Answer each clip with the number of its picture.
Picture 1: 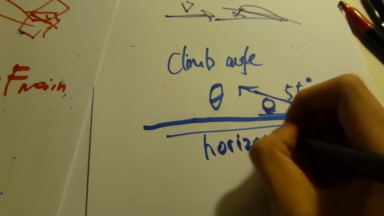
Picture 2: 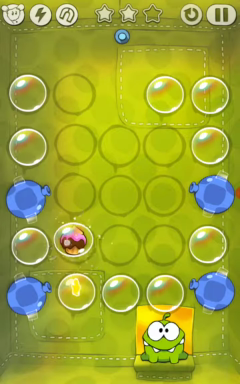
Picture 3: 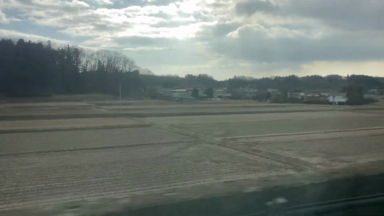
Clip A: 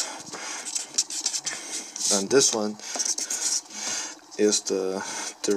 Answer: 1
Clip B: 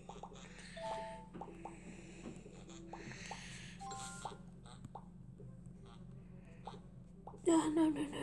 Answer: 2